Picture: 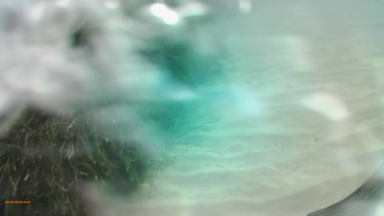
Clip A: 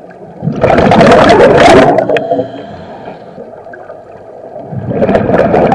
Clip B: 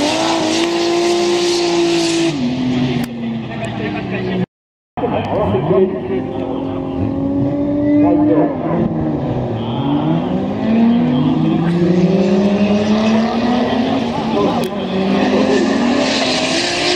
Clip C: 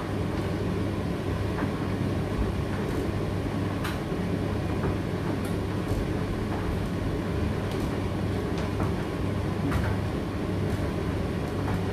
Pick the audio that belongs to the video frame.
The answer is A